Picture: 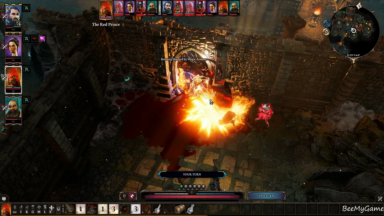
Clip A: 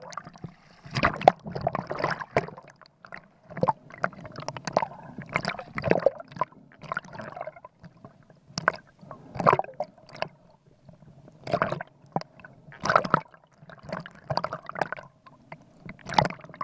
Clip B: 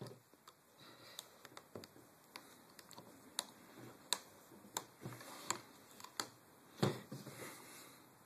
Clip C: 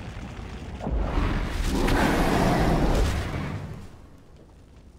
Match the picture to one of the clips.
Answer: C